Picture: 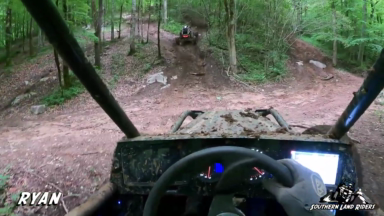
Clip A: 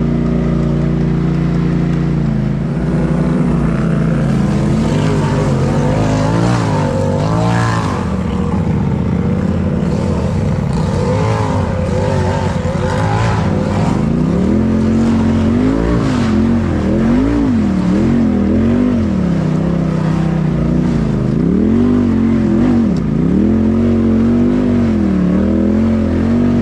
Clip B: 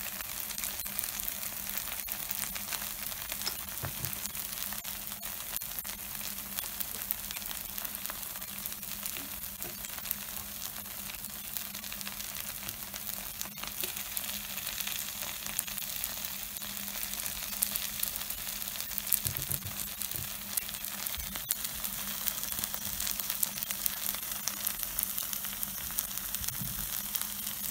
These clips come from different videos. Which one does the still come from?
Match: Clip A